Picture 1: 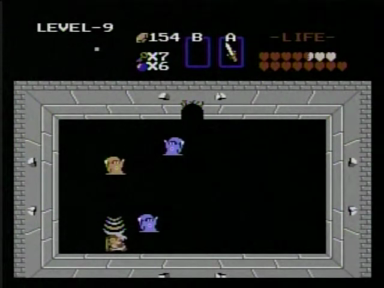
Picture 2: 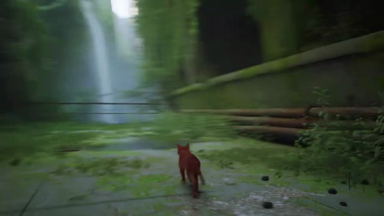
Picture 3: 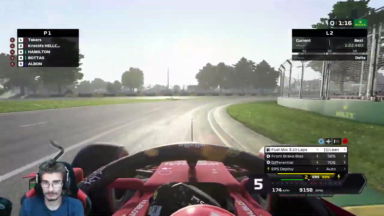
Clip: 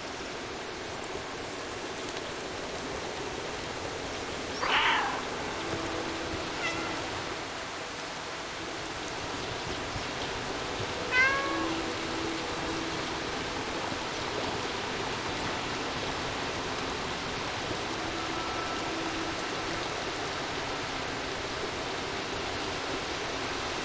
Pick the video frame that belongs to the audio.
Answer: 2